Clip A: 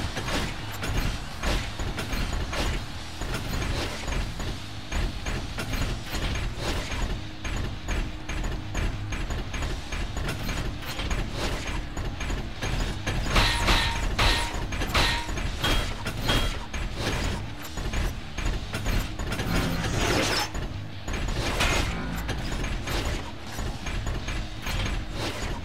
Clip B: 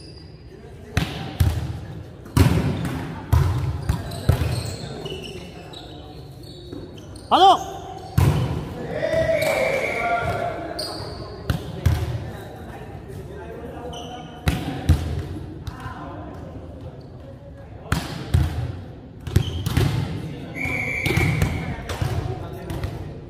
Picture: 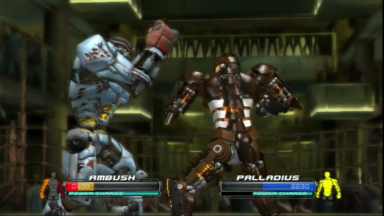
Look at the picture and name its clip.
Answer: A